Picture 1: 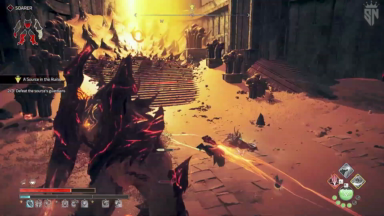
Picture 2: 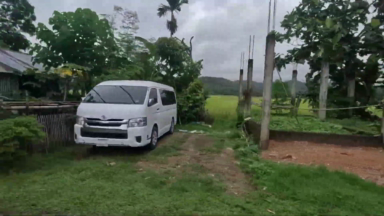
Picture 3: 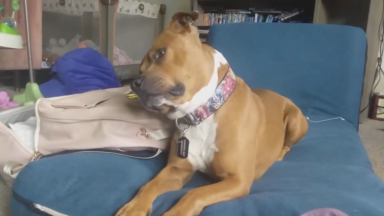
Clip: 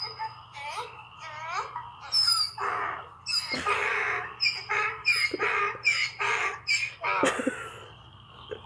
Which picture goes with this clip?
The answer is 3